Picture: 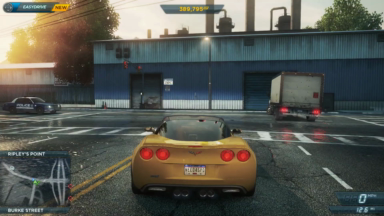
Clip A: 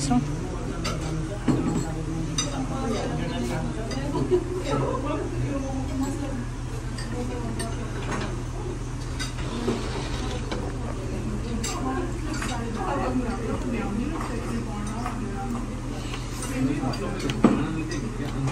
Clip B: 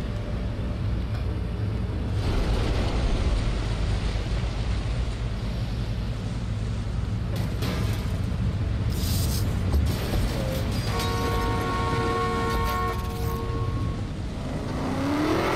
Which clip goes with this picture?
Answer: B